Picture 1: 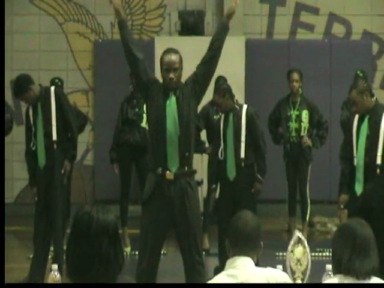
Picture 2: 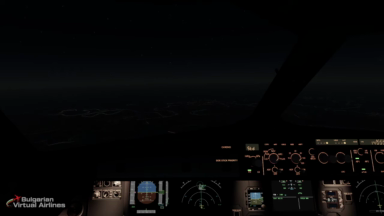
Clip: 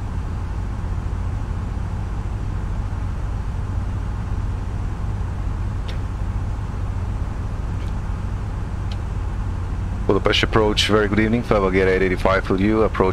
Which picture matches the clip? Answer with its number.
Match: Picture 2